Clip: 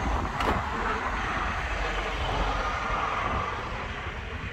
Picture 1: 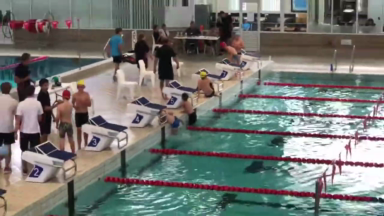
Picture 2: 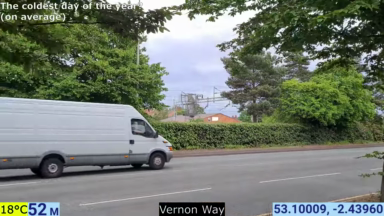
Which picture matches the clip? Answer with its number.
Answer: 2